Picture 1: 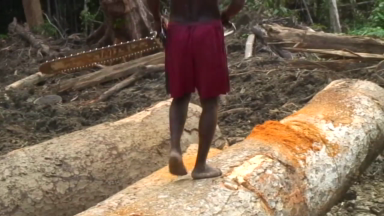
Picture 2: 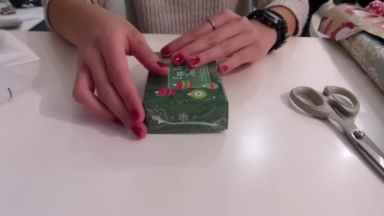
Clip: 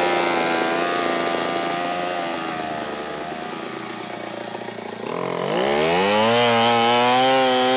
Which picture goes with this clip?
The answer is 1